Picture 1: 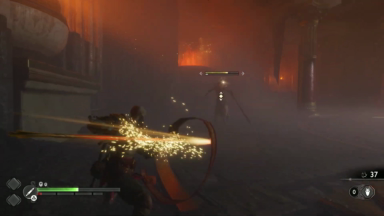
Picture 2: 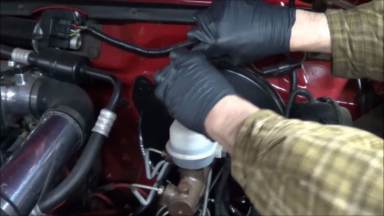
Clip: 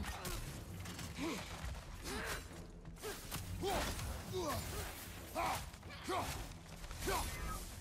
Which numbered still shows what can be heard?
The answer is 1